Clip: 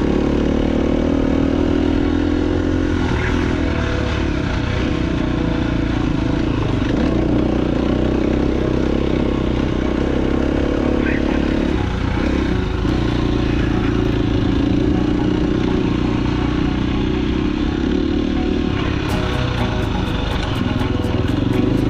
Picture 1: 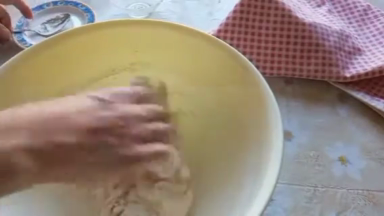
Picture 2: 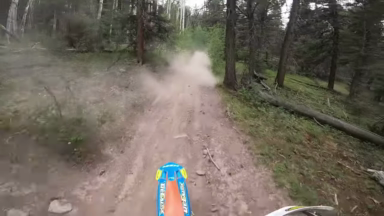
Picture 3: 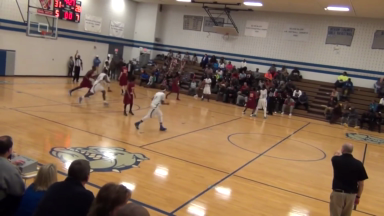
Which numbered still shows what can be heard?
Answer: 2